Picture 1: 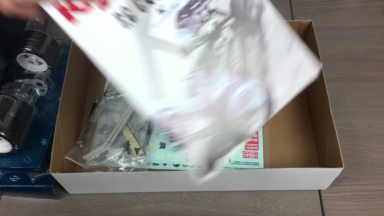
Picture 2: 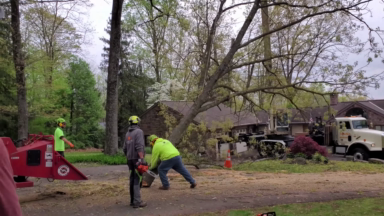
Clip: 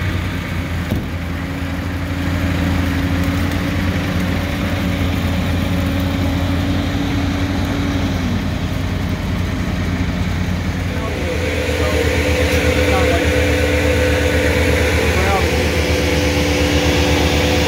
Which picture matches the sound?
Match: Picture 2